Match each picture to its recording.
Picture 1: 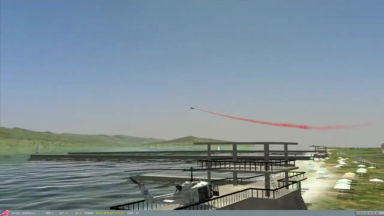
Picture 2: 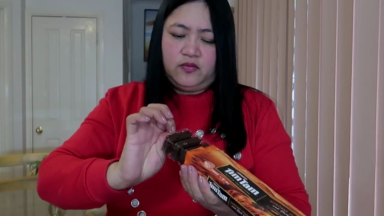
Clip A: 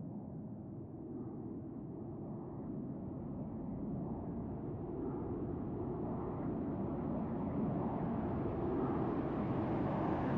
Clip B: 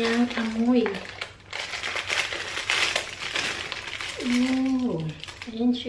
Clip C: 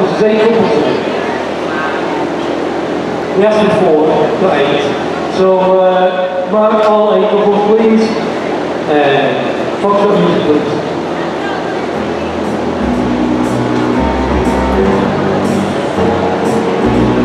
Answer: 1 A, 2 B